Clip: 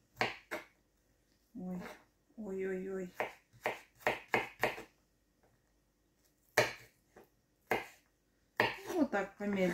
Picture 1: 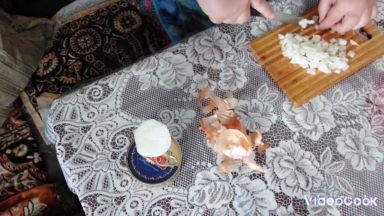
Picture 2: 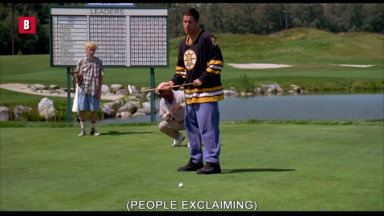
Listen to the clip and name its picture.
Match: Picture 1